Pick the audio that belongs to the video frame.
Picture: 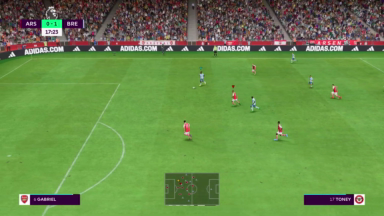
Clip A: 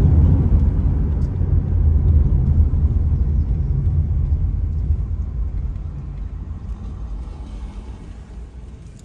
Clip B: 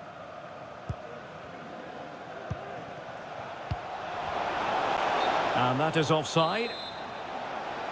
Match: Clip B